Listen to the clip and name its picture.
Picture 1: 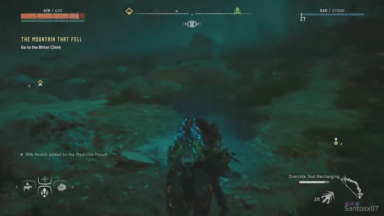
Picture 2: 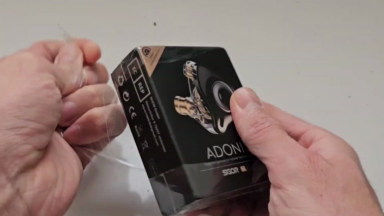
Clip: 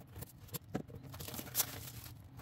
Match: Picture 2